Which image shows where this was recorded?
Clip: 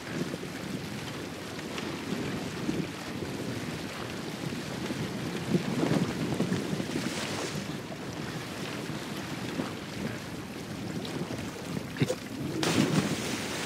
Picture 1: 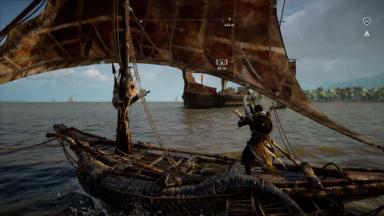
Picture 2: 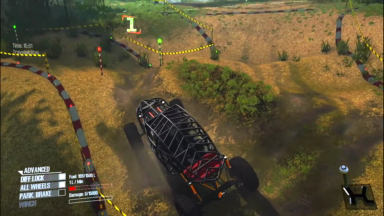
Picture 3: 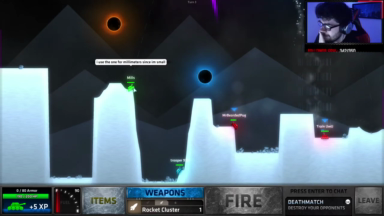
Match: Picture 1